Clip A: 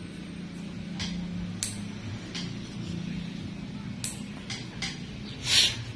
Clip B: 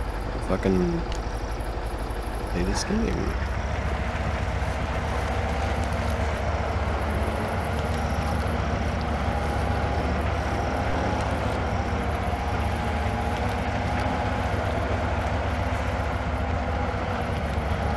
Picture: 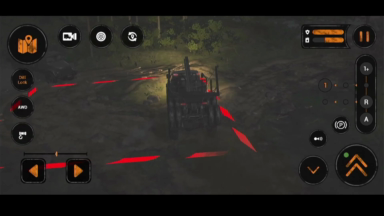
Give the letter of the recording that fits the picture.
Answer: B